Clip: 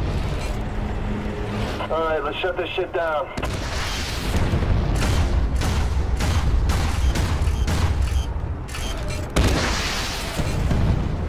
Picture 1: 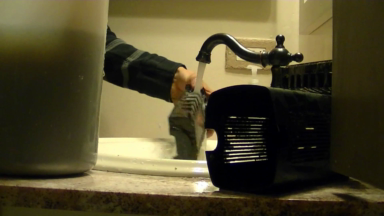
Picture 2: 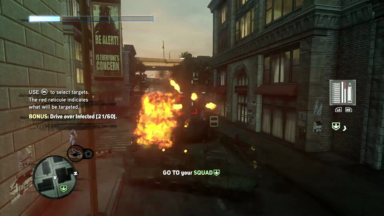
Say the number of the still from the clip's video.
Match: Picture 2